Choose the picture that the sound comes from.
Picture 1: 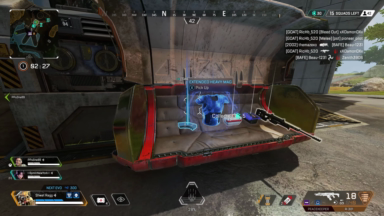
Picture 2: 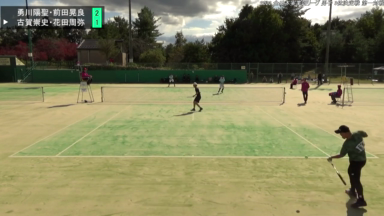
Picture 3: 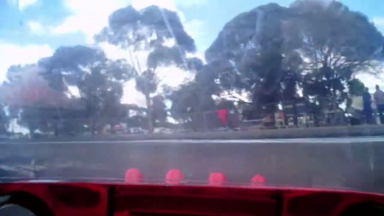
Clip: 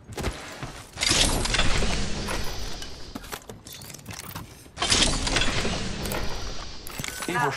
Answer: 1